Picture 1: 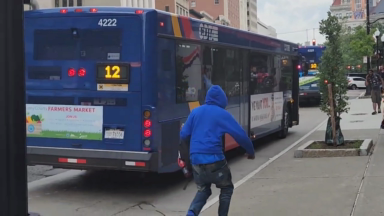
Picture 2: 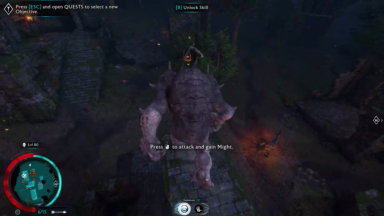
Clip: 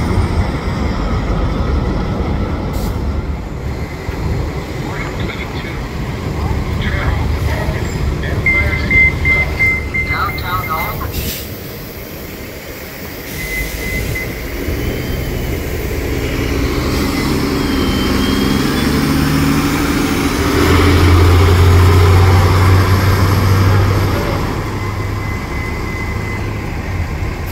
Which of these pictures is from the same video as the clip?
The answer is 1